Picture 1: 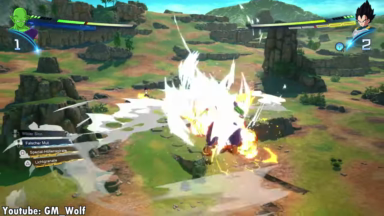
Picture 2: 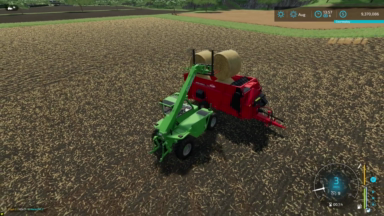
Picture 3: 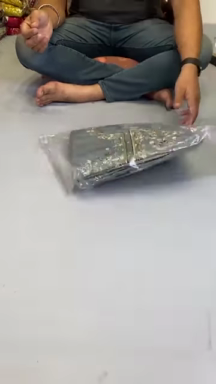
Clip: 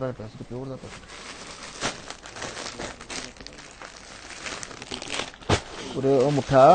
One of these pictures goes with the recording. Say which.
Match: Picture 3